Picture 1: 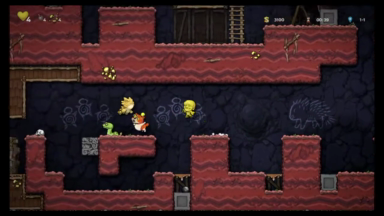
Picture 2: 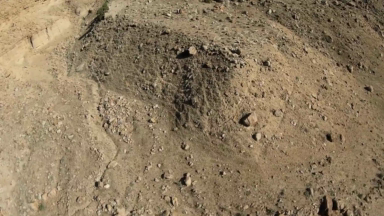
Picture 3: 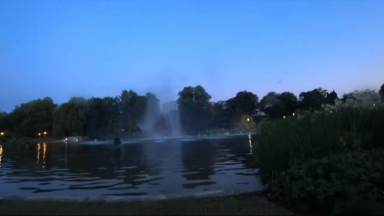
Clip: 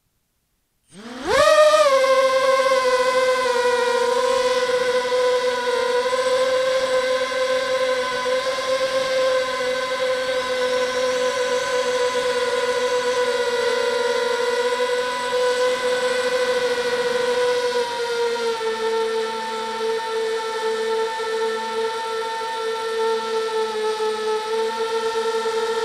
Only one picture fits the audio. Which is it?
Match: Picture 2